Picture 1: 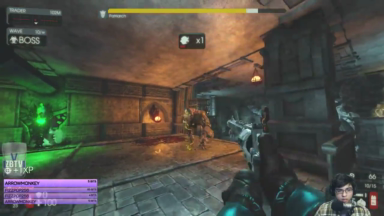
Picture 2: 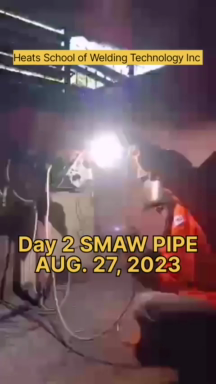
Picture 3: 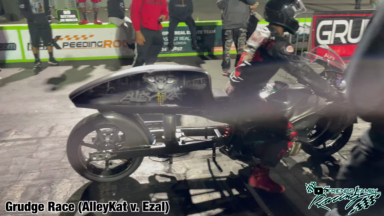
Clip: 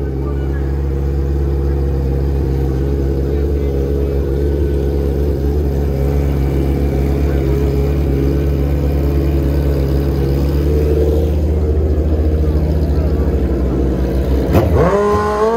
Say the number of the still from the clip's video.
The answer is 3